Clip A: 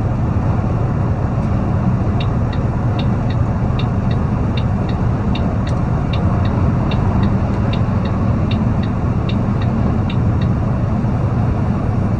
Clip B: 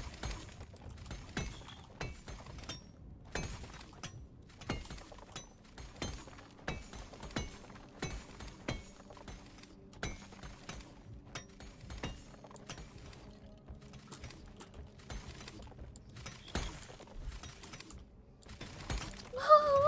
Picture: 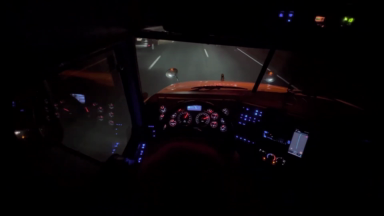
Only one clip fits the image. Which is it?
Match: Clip A